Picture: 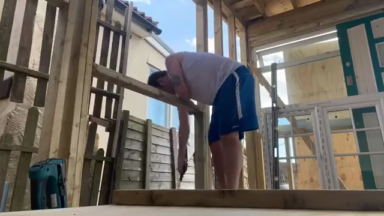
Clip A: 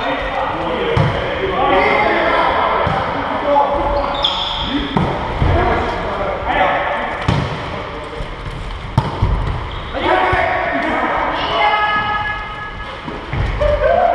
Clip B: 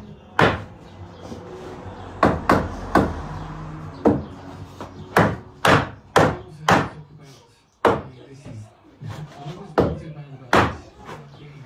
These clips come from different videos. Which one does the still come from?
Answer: B